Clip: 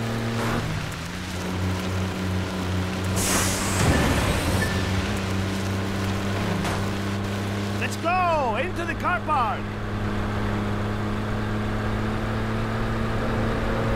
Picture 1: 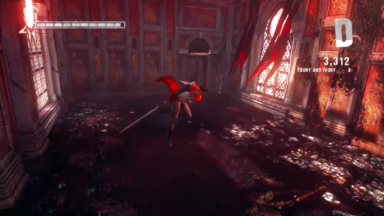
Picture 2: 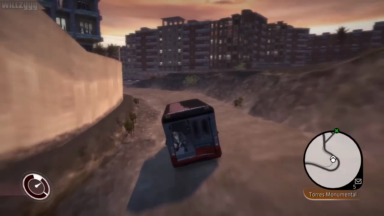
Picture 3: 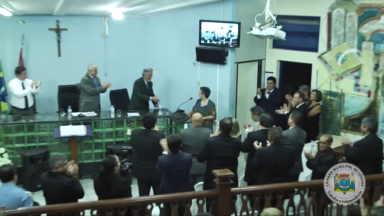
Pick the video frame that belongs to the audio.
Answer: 2